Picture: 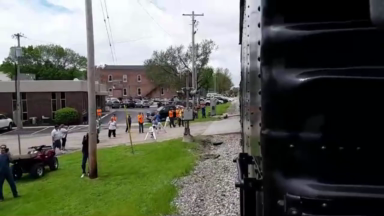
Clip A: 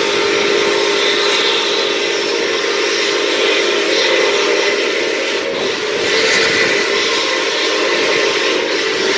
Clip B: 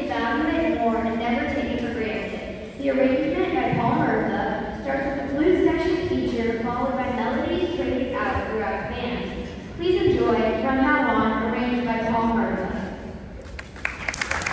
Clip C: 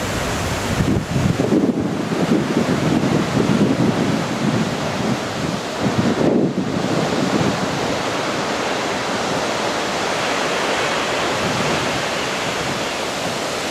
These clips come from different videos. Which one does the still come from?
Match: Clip A